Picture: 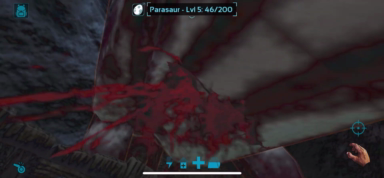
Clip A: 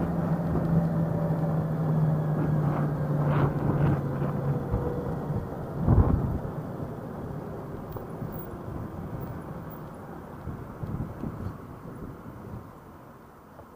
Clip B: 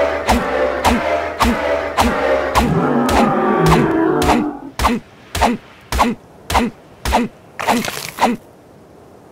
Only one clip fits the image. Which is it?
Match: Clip B